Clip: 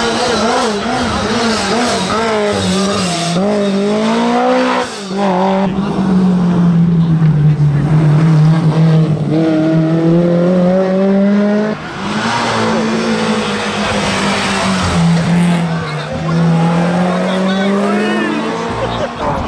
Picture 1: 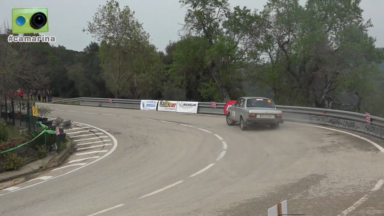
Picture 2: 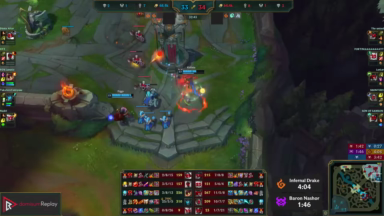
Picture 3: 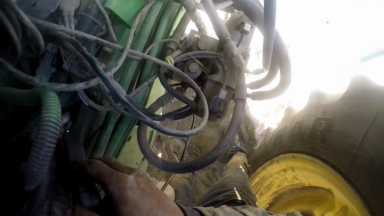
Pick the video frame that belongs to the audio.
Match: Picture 1